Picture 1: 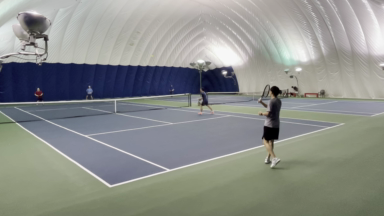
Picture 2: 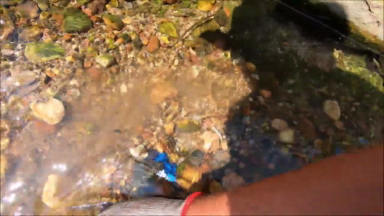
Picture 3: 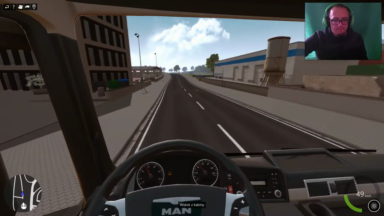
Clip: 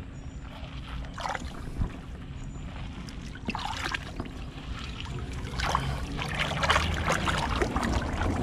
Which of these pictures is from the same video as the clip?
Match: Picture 2